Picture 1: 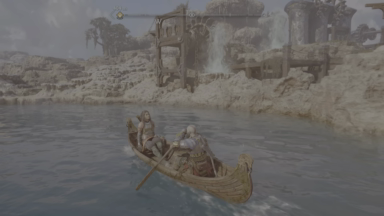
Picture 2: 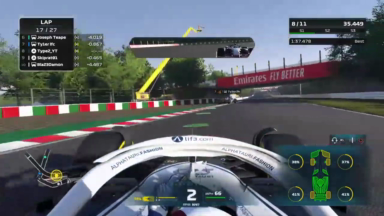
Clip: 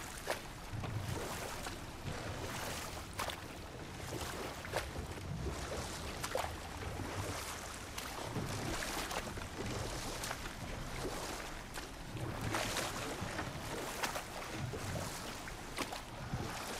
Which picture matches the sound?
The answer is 1